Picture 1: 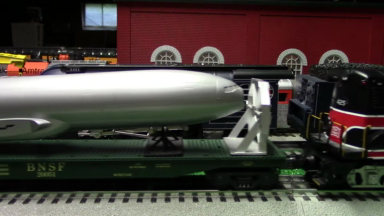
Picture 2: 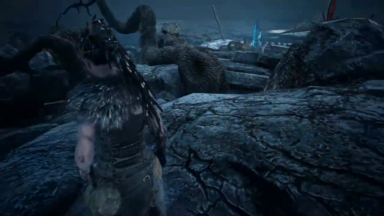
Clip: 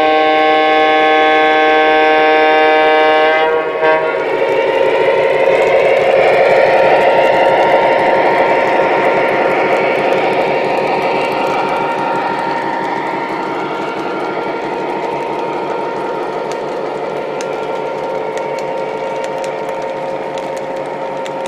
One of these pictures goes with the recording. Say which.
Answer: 1